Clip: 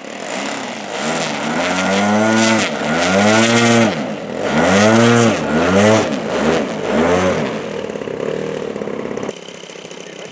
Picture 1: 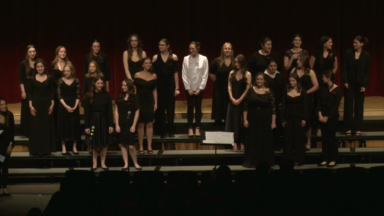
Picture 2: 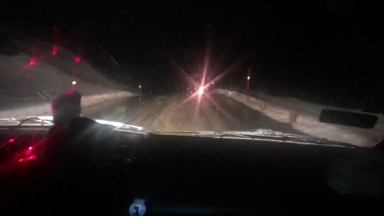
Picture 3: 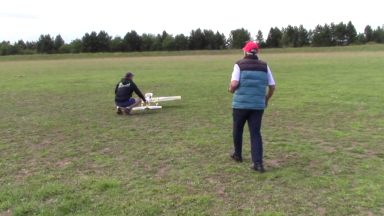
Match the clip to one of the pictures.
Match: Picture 3